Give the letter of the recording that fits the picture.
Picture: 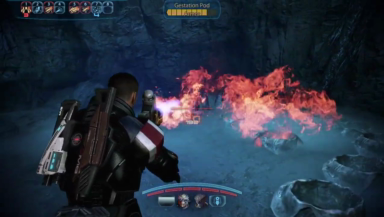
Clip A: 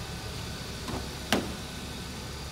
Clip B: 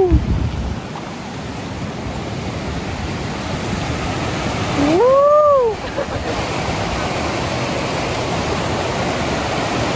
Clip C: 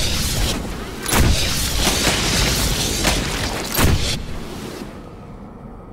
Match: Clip C